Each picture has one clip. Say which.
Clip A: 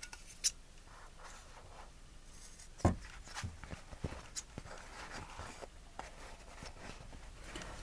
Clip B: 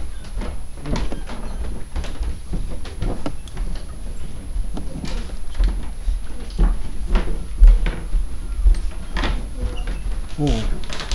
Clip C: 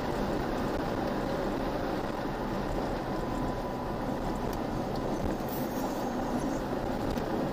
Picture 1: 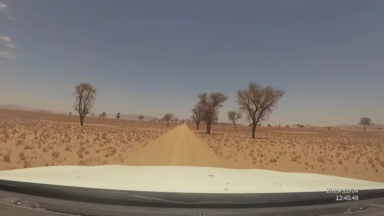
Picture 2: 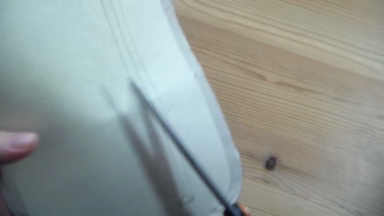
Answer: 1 C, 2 A